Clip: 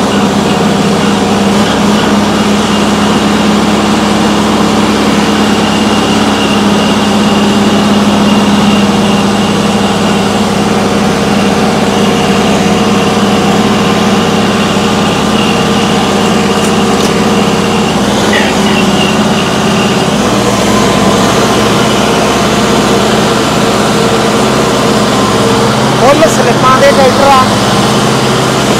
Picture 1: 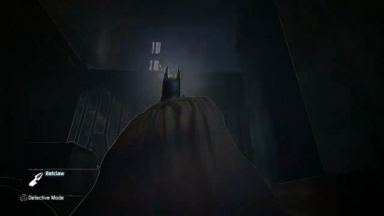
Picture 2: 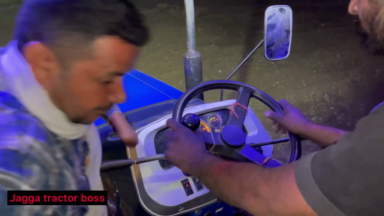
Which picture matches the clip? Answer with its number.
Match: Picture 2